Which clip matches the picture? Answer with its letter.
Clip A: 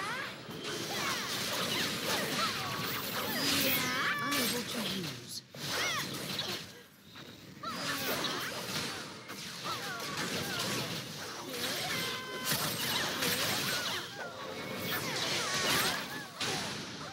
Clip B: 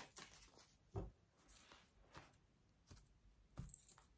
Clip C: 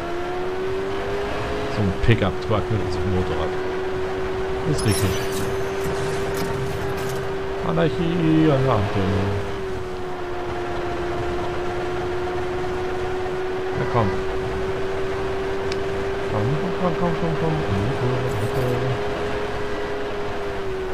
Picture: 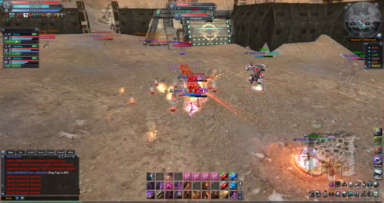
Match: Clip A